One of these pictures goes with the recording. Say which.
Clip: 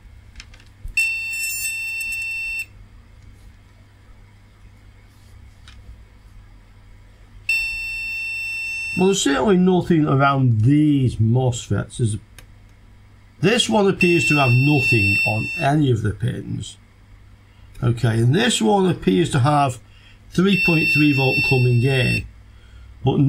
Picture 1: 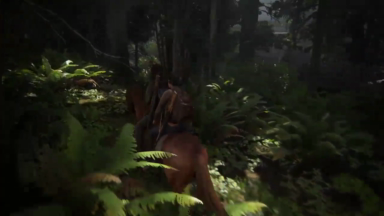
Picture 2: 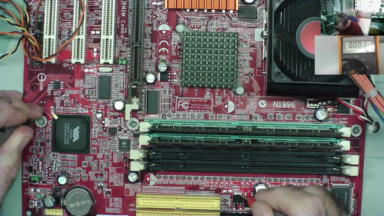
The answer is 2